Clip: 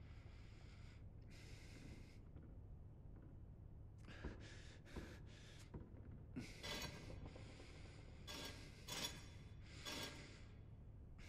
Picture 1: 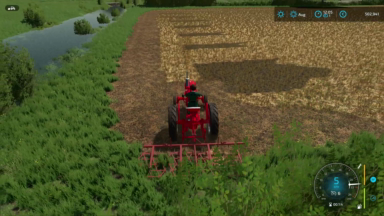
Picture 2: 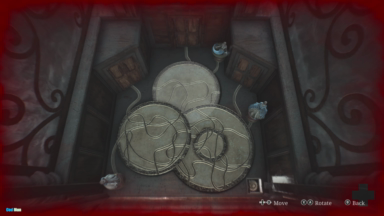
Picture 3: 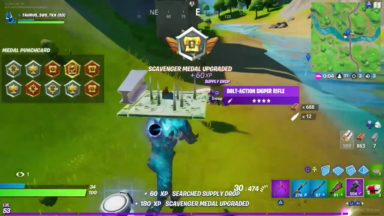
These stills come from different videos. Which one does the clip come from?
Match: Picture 2